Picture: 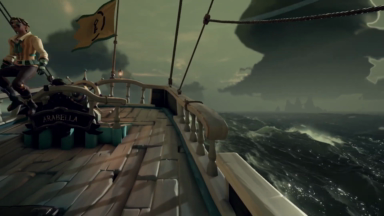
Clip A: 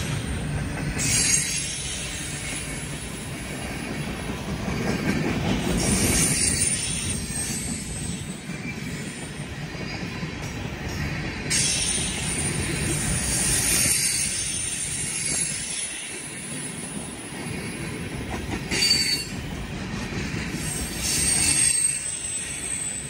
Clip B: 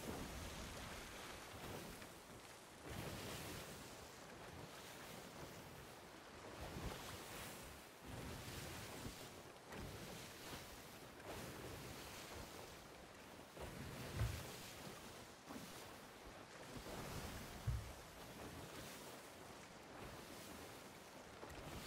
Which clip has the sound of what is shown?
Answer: B